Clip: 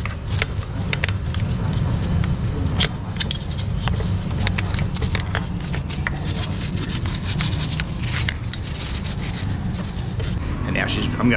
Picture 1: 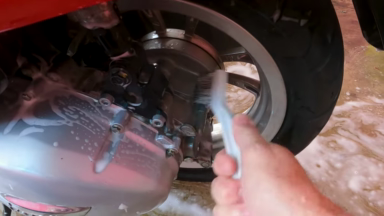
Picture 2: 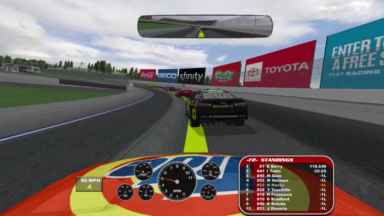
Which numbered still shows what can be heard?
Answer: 1